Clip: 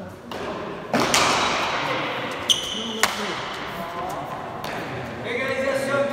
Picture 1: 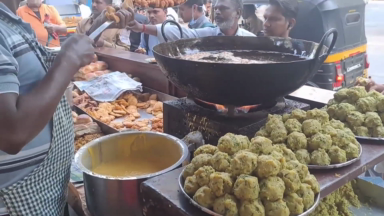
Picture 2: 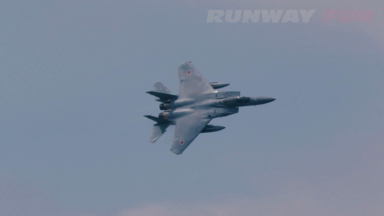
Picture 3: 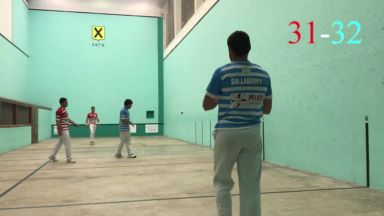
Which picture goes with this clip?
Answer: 3